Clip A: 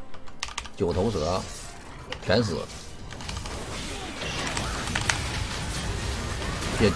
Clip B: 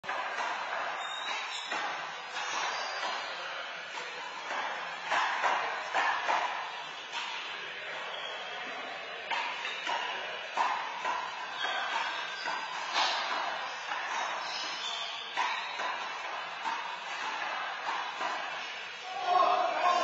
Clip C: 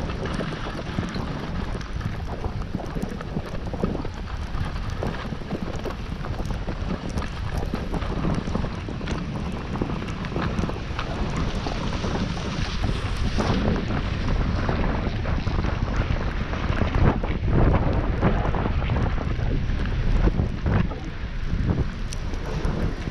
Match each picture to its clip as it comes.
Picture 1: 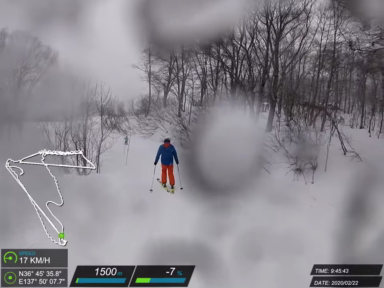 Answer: C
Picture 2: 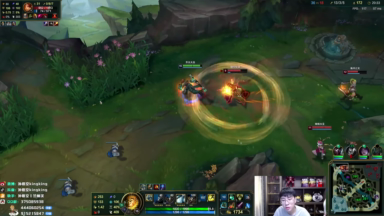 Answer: A